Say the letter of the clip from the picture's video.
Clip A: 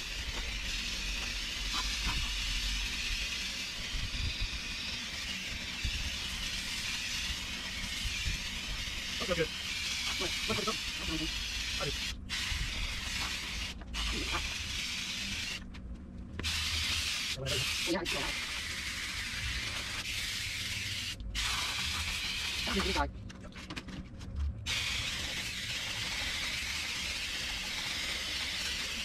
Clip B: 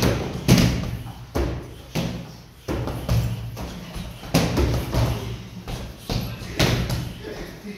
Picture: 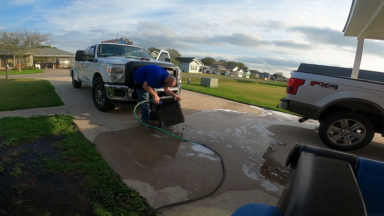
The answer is A